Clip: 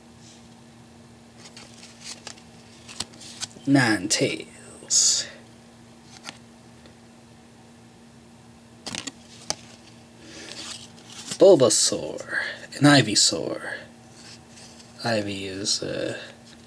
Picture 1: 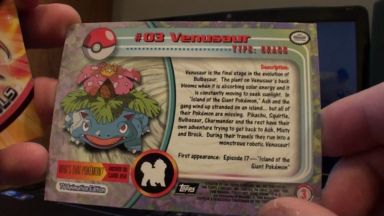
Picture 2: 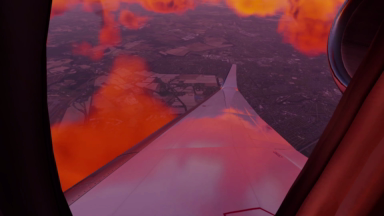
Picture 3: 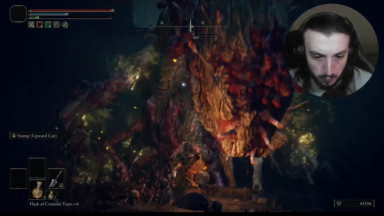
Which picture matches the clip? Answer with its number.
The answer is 1